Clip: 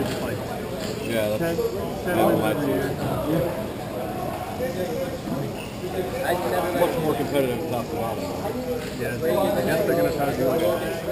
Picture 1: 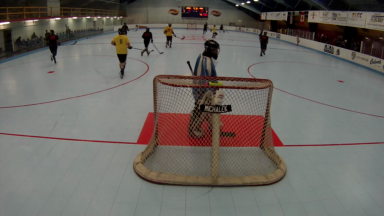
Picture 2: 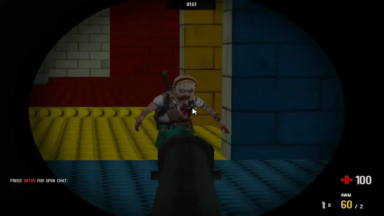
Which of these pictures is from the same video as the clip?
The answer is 1